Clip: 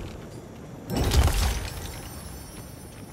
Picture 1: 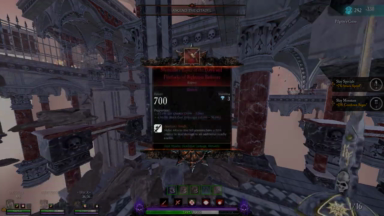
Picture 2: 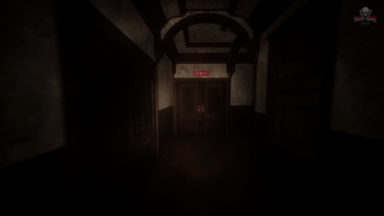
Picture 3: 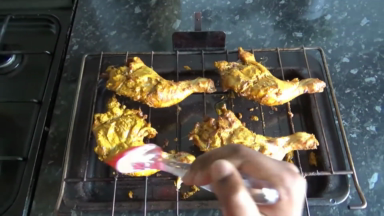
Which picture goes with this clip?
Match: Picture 1